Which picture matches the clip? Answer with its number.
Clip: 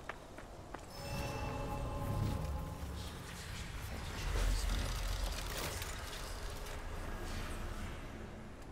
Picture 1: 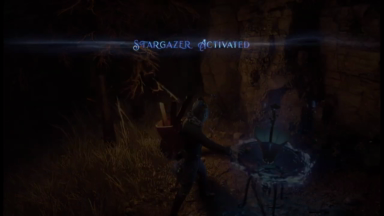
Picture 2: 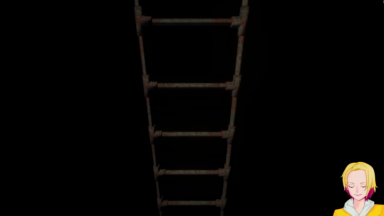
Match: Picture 1